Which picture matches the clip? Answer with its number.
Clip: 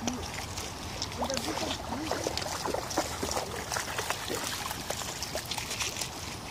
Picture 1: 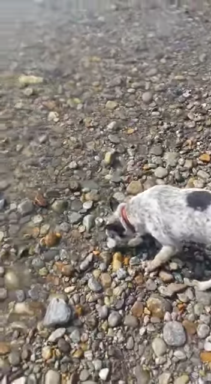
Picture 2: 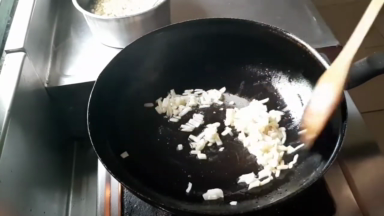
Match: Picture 1